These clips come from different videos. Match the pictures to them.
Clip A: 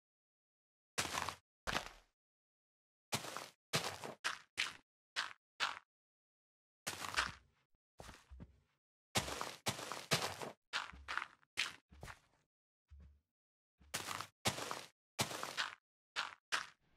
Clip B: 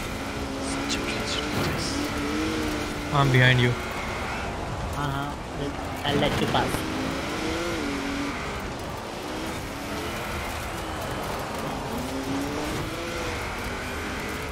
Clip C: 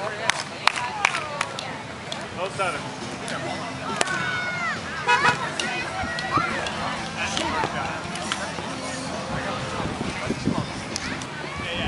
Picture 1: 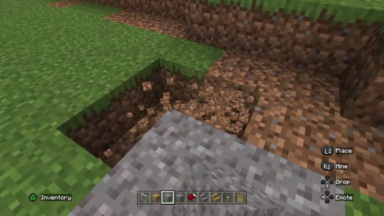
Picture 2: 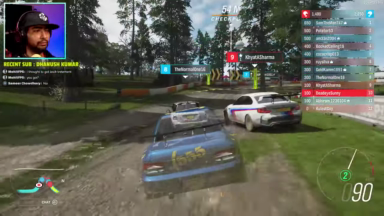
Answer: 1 A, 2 B